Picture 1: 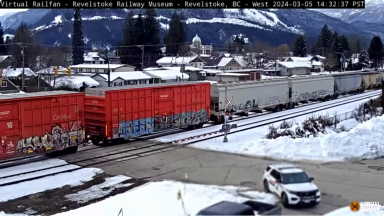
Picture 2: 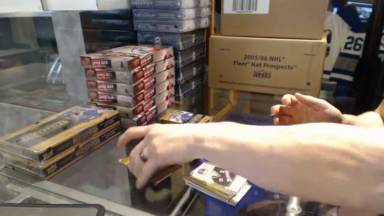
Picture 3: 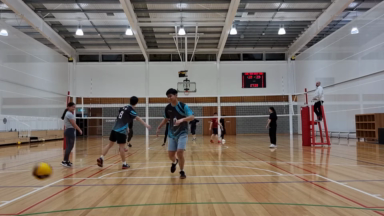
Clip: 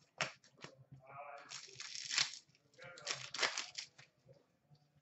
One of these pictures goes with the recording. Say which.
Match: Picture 2